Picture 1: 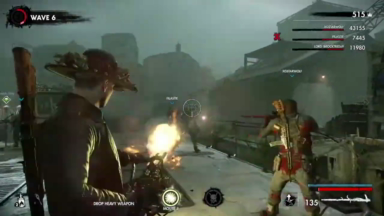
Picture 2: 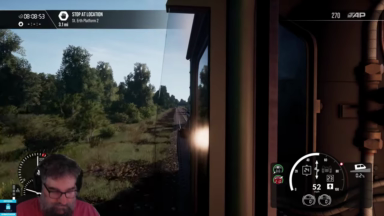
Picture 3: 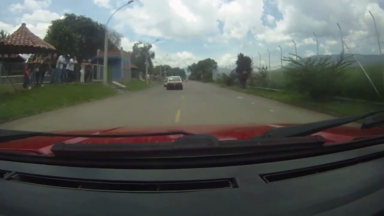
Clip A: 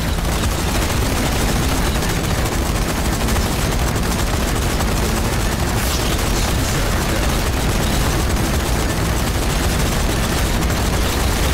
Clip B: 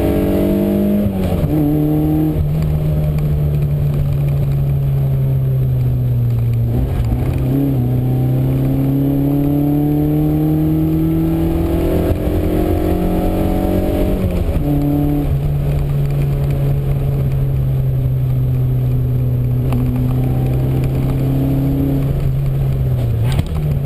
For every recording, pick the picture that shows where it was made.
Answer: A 1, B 3